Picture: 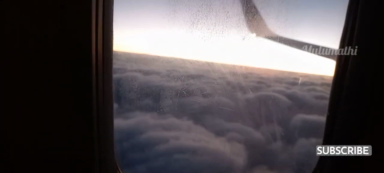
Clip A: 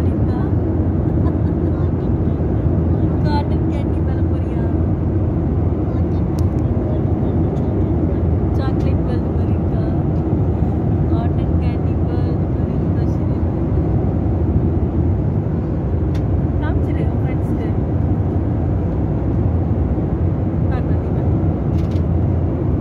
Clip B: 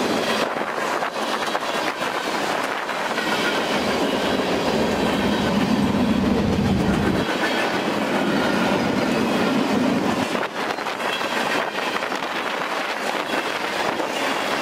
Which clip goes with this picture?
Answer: A